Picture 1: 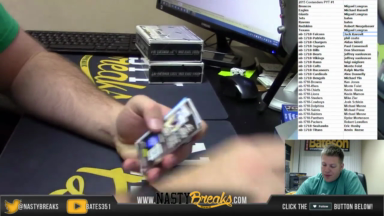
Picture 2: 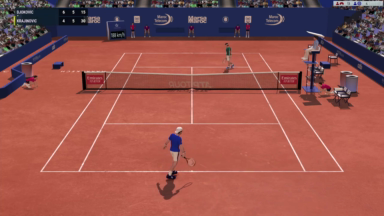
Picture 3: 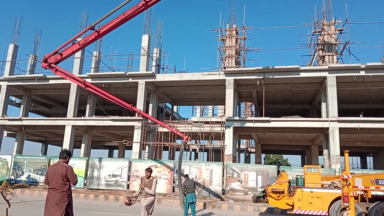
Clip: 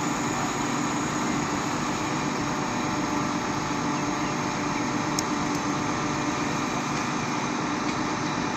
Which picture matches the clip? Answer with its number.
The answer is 3